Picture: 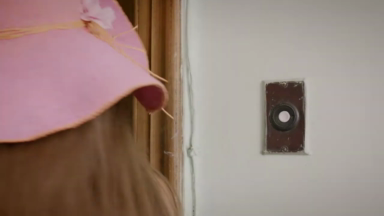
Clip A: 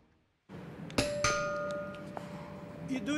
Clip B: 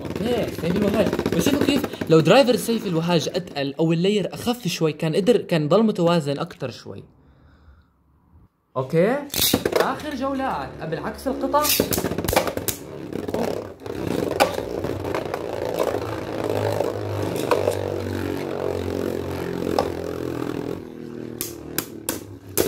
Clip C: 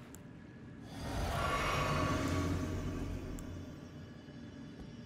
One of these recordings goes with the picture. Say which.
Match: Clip A